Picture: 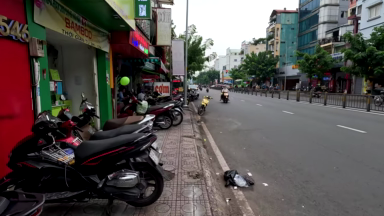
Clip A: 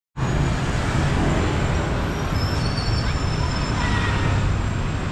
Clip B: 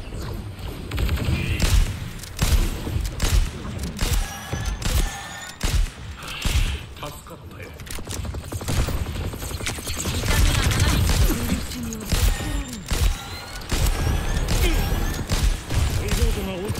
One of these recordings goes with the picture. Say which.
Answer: A